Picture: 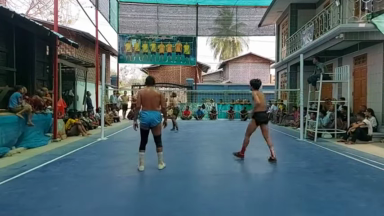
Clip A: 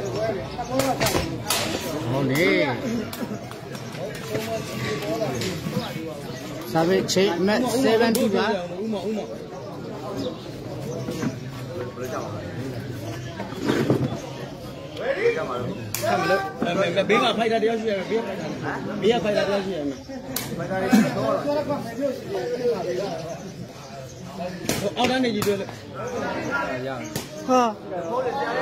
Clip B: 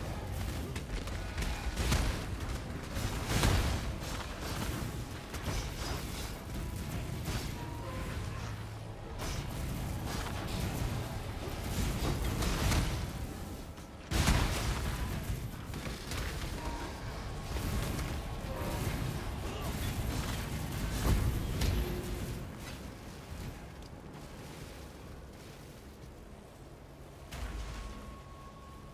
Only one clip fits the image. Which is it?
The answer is A